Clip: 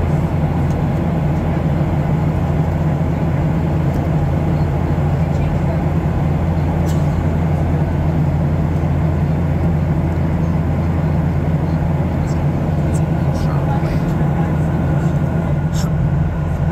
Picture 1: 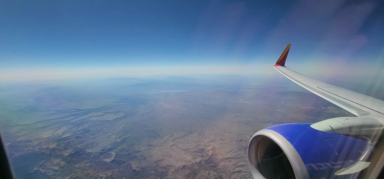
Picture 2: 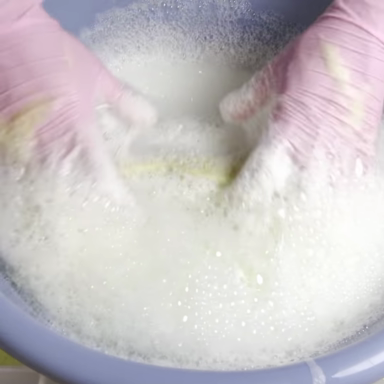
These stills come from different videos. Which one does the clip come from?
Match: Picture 1